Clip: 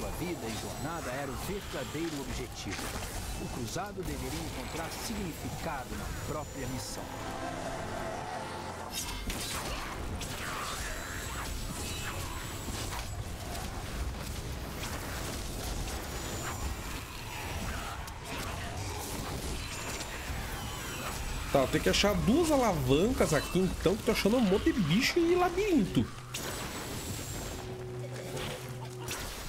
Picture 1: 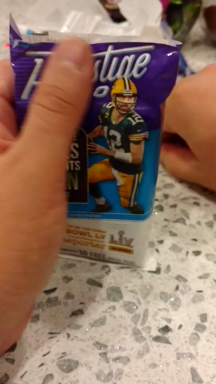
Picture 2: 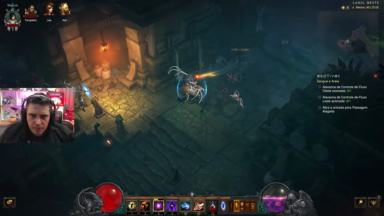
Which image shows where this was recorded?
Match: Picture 2